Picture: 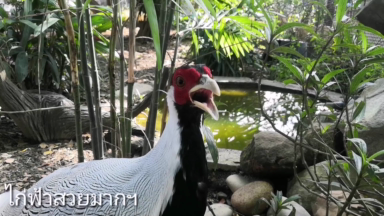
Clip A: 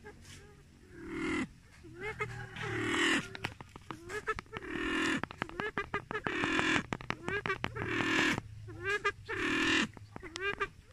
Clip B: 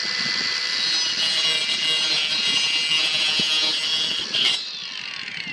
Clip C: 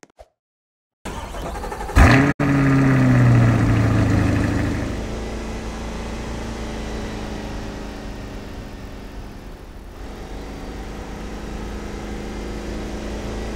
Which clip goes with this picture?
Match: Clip A